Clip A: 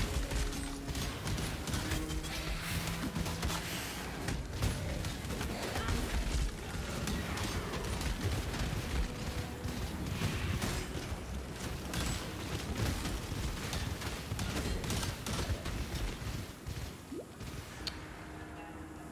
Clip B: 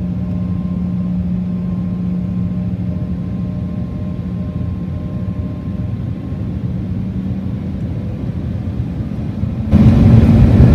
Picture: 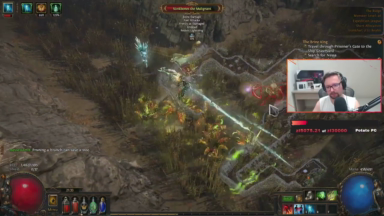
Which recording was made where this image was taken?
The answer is A